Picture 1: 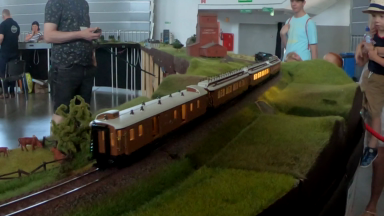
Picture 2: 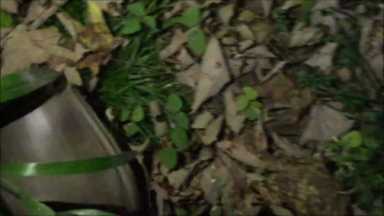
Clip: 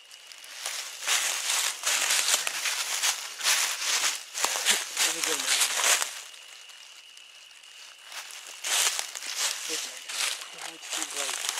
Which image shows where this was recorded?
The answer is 2